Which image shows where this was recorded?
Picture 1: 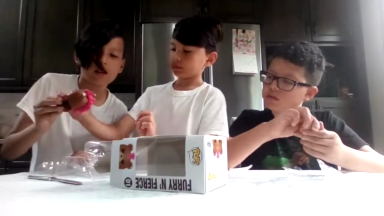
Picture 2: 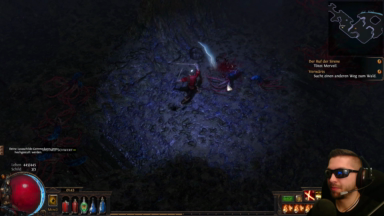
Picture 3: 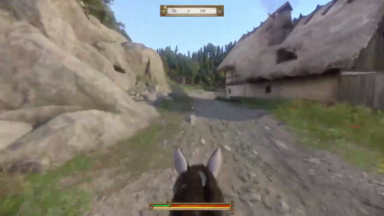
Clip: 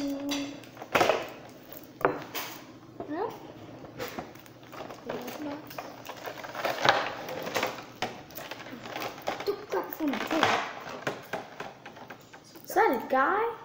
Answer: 1